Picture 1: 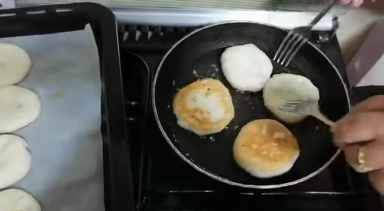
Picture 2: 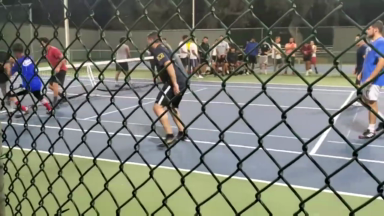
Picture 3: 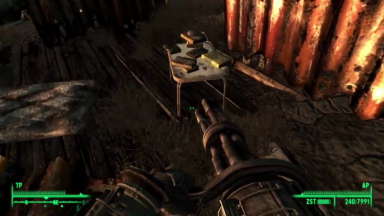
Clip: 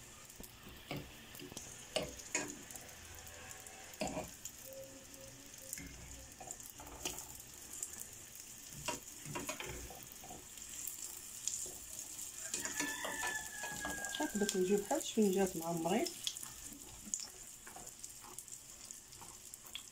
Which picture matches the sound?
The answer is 1